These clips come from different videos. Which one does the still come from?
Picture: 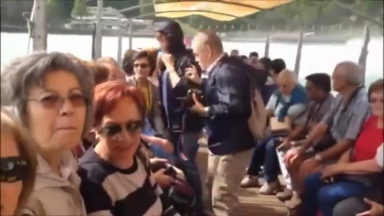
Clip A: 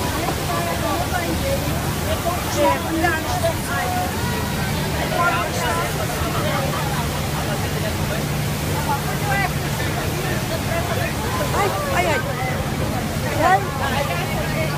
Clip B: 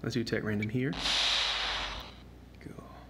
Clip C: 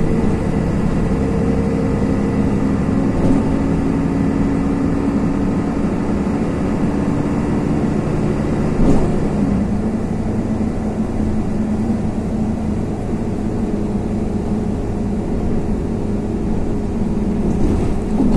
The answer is A